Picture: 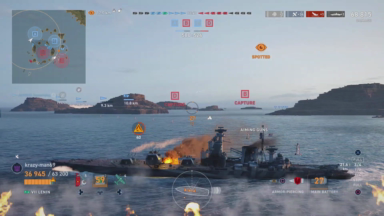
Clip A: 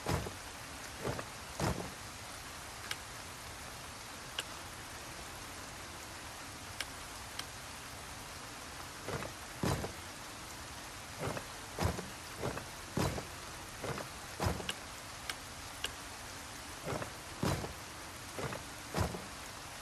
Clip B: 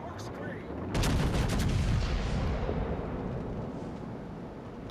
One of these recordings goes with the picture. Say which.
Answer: B